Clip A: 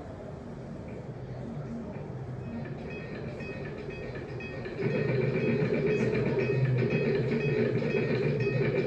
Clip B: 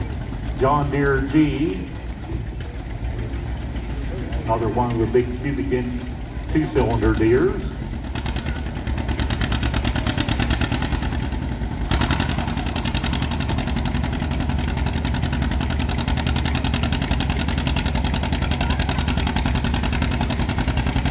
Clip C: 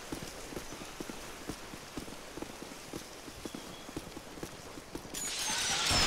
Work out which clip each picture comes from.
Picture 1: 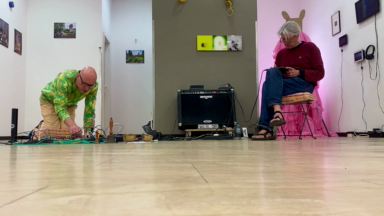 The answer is A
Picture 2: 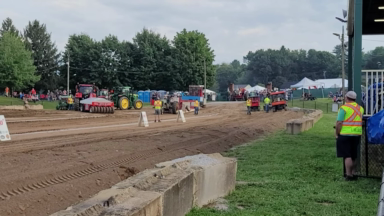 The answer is B